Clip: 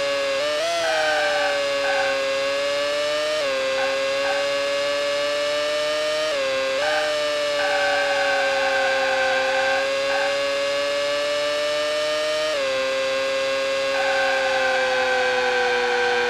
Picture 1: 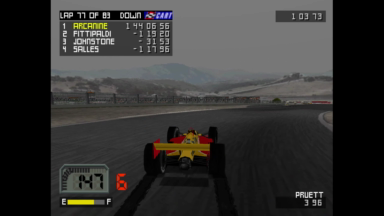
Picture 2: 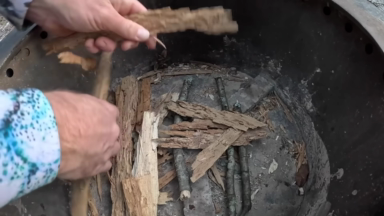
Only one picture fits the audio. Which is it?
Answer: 1